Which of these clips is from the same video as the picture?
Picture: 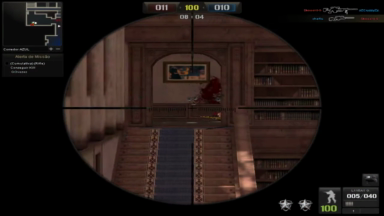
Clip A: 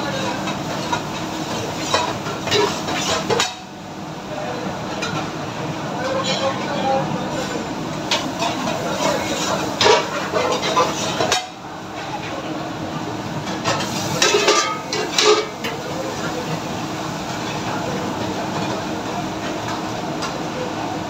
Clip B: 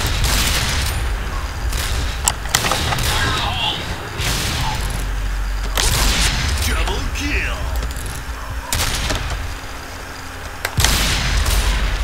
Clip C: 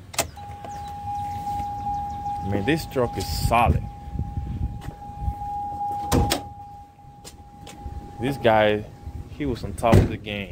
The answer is B